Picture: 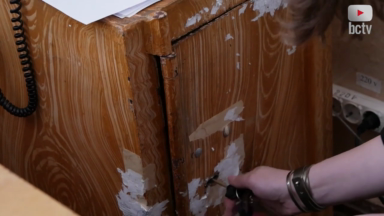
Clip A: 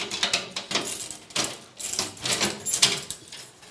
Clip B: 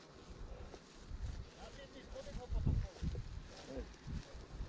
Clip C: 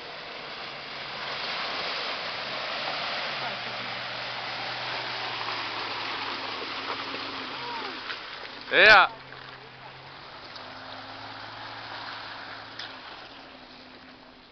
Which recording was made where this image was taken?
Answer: A